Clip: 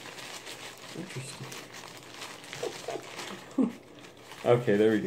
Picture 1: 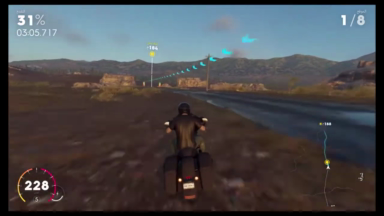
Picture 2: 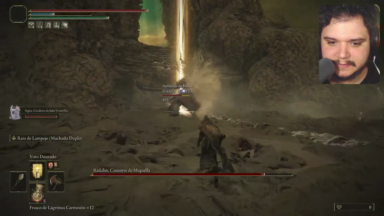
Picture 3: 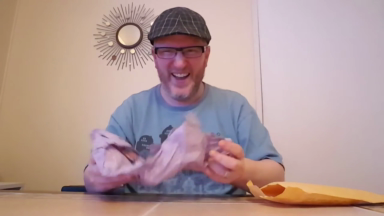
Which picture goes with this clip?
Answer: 3